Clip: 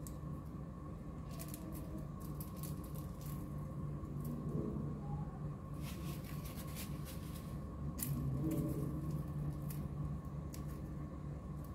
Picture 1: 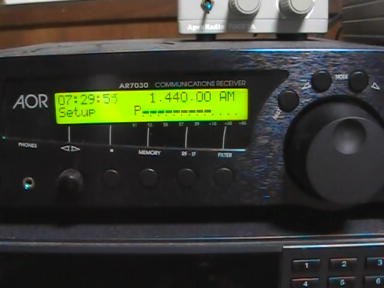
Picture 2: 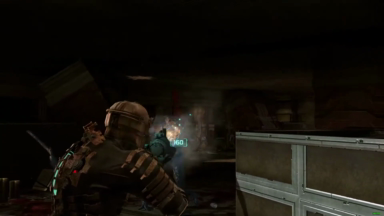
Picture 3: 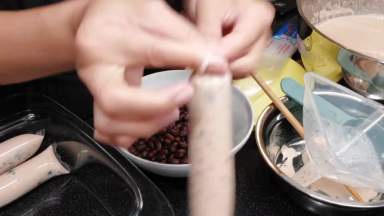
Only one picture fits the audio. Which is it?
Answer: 3